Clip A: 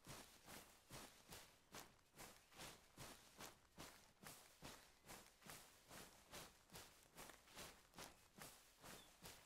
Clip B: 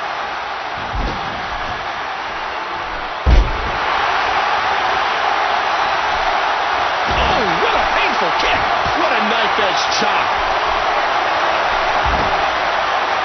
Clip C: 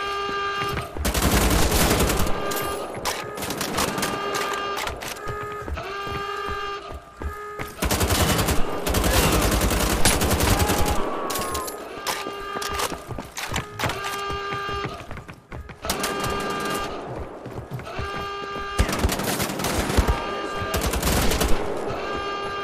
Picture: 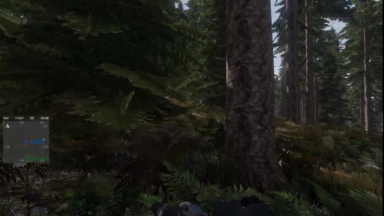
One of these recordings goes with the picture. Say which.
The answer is A